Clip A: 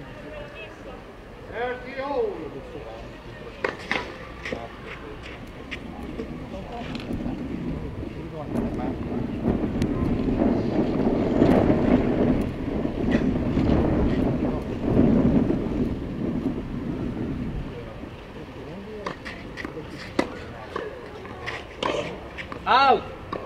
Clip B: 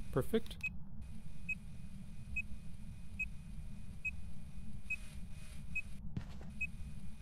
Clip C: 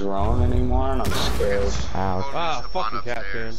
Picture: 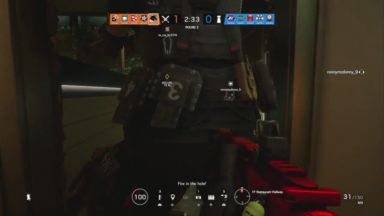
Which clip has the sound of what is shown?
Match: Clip C